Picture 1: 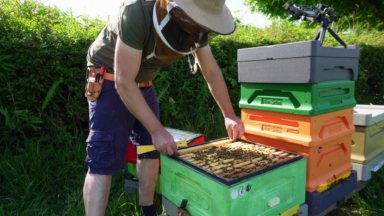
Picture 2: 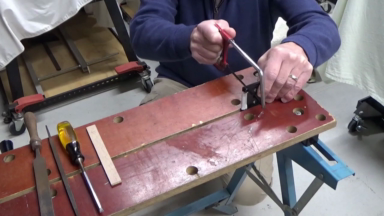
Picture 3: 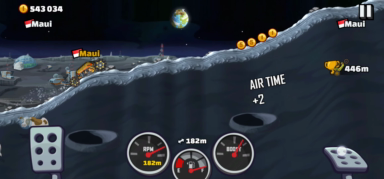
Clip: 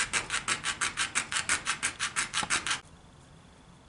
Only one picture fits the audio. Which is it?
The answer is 2